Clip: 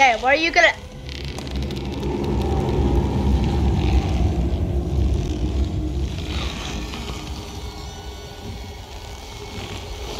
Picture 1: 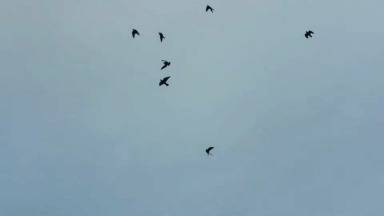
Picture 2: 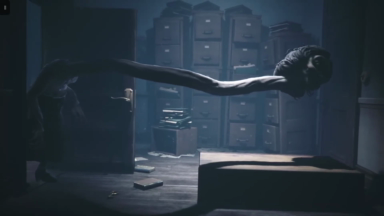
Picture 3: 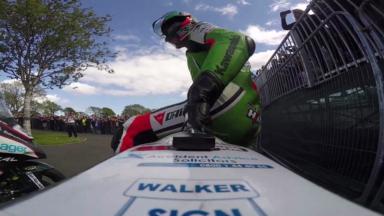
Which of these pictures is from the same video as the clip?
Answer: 2